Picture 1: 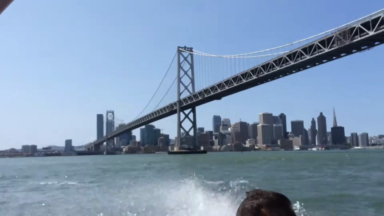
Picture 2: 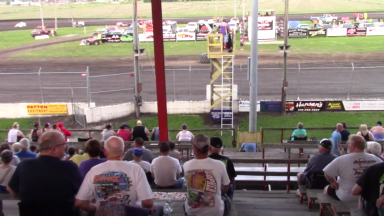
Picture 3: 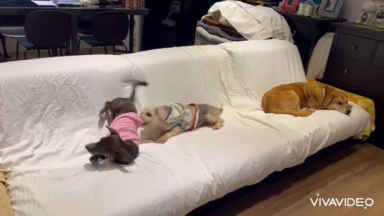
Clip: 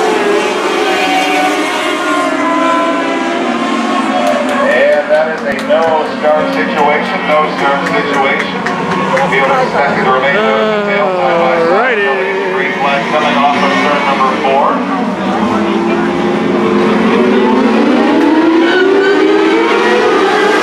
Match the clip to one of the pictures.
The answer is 2